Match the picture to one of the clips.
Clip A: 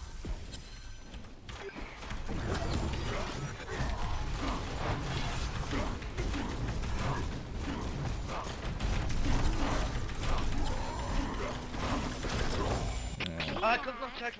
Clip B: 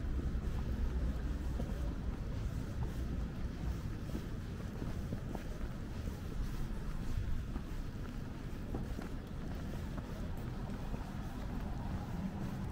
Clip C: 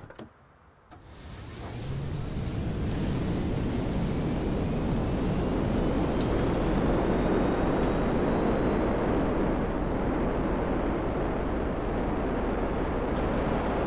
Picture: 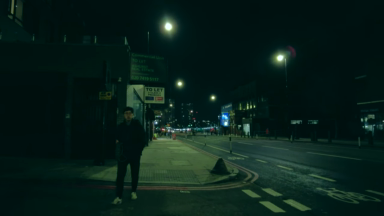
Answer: B